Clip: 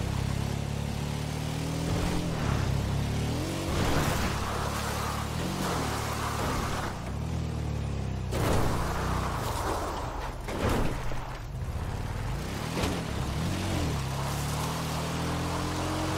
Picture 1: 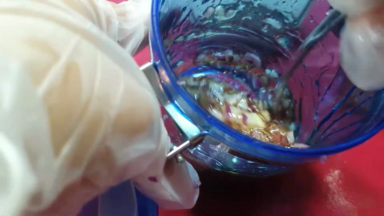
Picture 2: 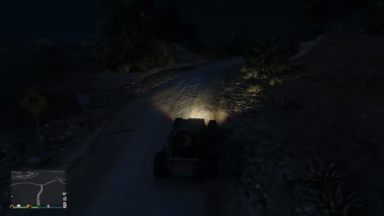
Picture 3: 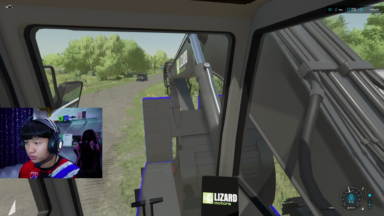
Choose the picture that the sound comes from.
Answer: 2